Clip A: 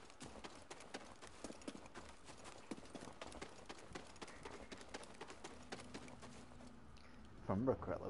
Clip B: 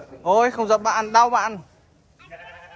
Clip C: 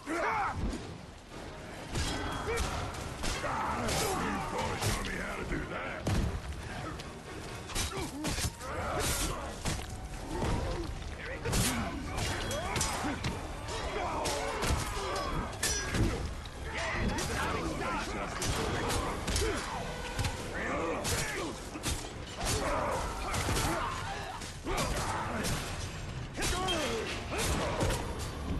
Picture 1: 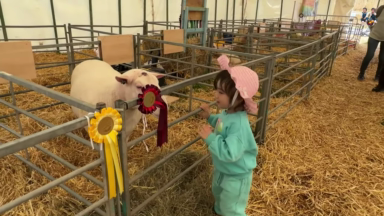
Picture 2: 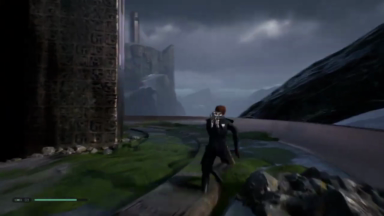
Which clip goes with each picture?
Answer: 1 B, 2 A